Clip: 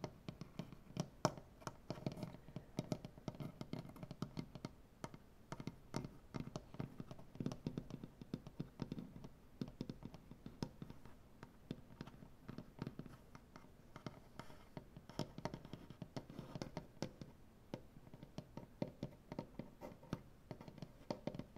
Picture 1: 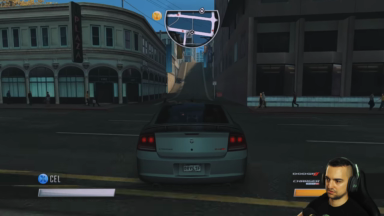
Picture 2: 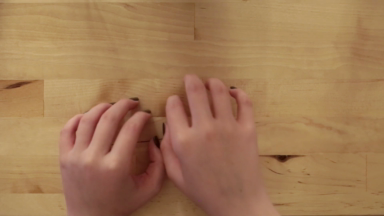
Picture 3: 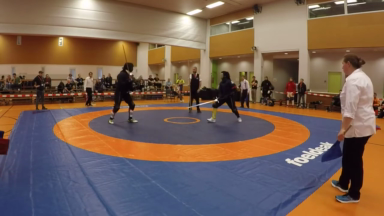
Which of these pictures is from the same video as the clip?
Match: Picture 2